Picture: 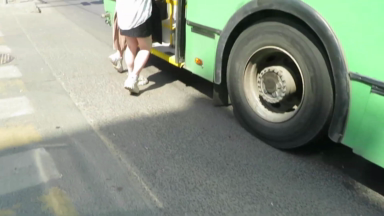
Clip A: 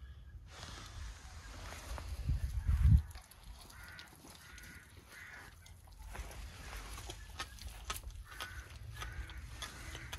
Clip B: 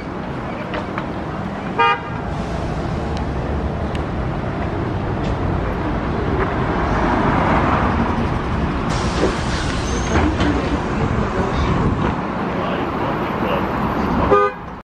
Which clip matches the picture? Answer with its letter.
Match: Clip B